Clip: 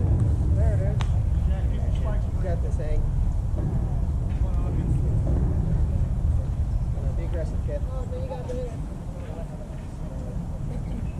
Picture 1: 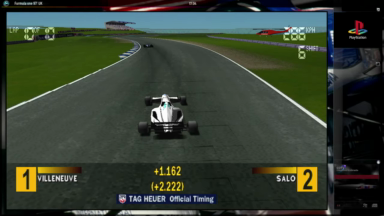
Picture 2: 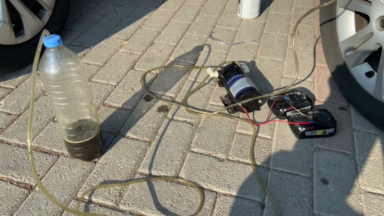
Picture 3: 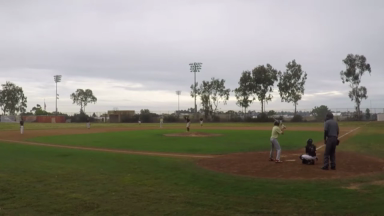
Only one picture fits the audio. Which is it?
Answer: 3